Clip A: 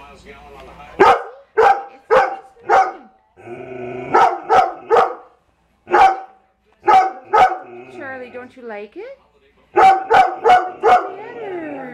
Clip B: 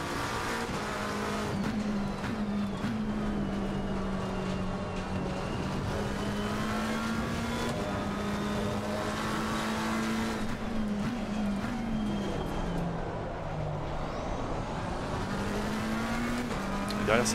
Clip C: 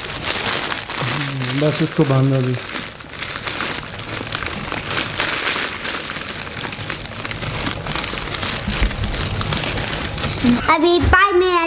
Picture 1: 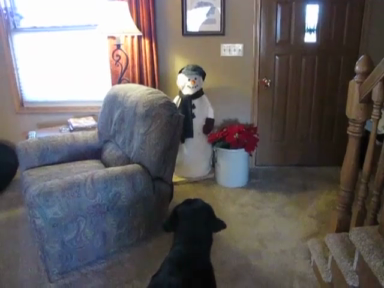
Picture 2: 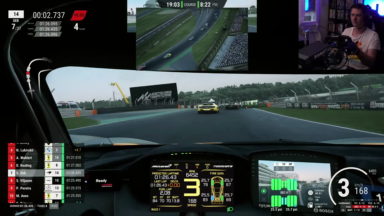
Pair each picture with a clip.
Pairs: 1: A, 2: B